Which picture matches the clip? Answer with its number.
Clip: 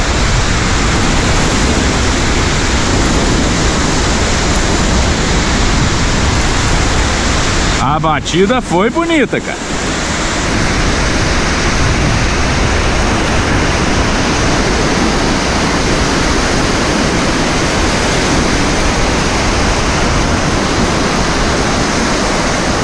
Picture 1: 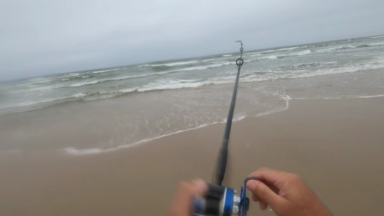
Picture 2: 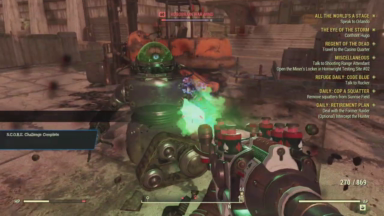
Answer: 1